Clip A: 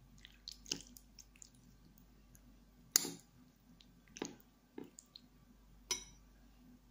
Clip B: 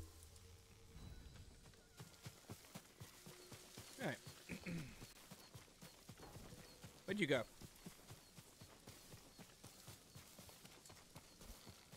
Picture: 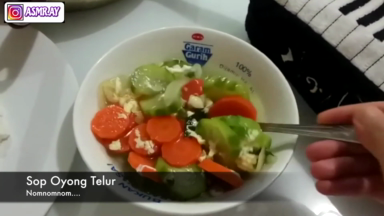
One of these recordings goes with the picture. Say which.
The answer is A